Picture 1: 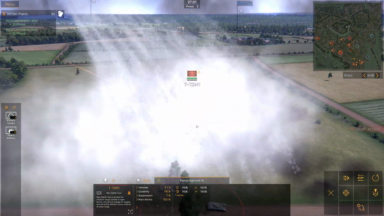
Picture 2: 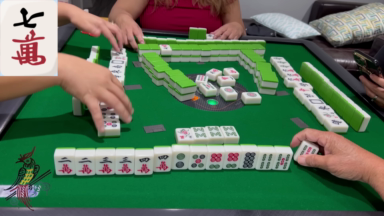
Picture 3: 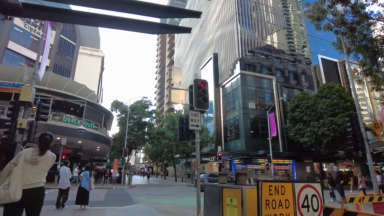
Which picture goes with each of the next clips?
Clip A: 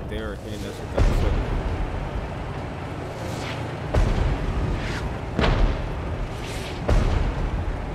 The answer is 1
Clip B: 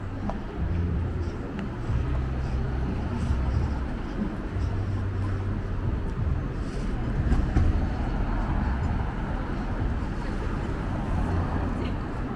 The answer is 3